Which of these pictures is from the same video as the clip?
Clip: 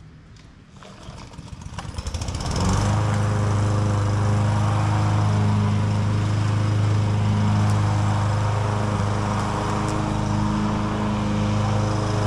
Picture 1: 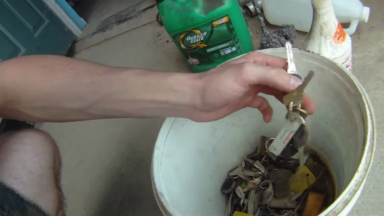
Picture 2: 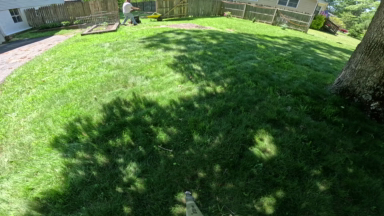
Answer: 2